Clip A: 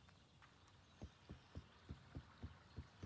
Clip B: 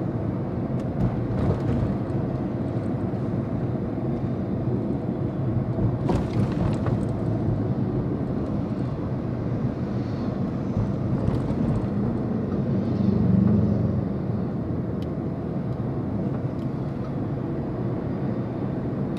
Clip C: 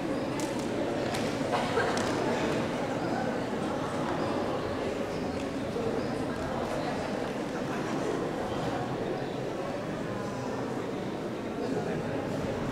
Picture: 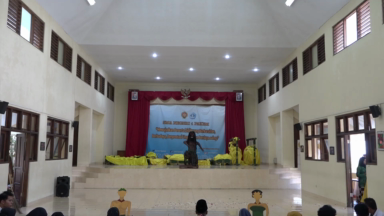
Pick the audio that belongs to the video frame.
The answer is C